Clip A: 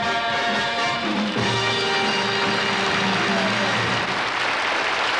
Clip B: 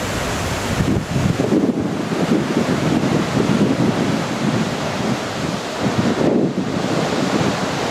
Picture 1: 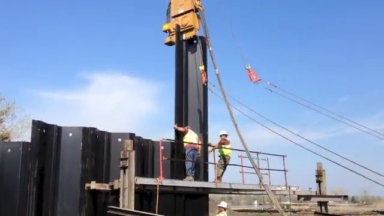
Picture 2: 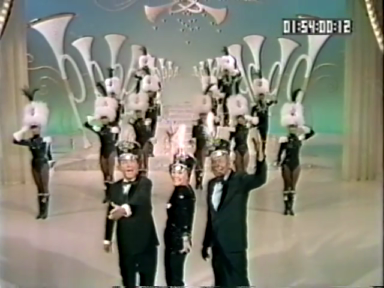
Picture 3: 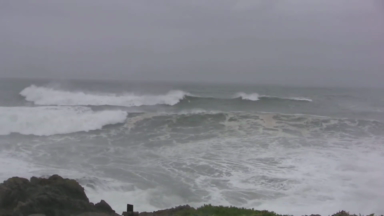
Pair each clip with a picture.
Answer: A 2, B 3